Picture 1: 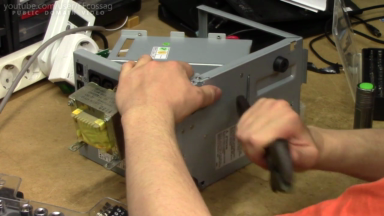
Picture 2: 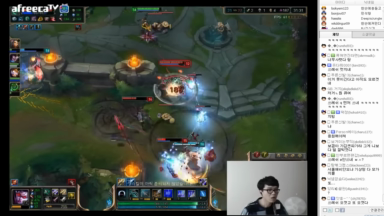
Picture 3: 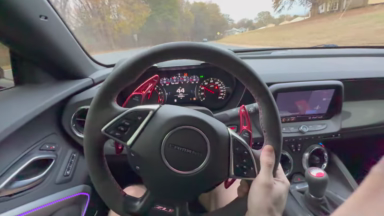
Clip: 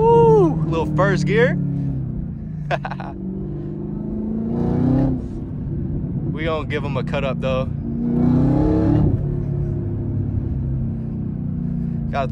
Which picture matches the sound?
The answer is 3